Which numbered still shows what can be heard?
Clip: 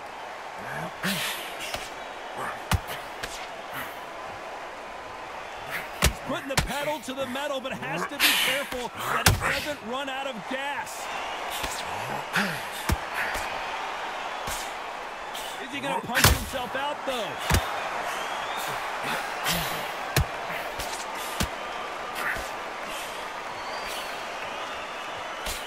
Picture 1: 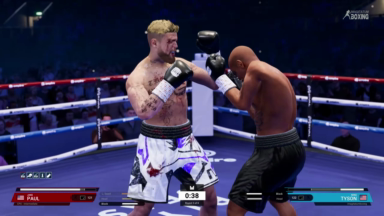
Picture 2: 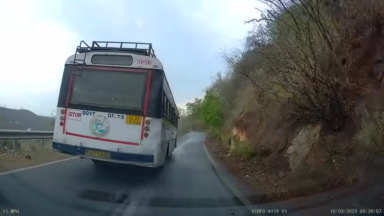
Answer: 1